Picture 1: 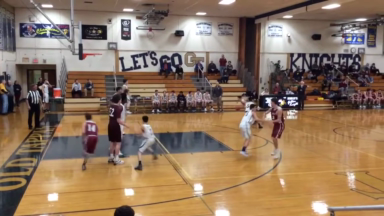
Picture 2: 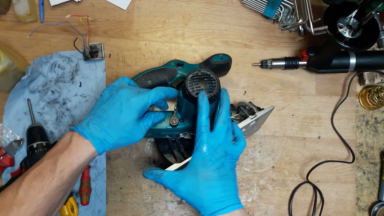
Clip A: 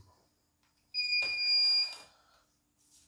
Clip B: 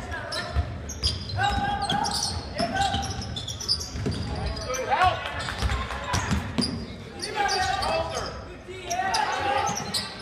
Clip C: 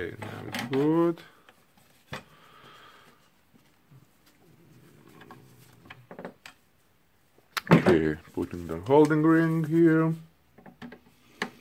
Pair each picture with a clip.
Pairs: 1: B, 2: C